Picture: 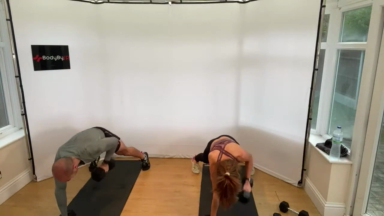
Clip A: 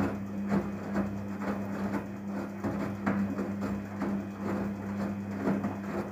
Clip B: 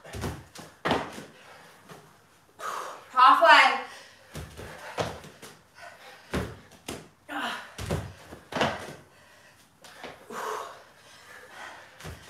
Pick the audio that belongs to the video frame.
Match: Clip B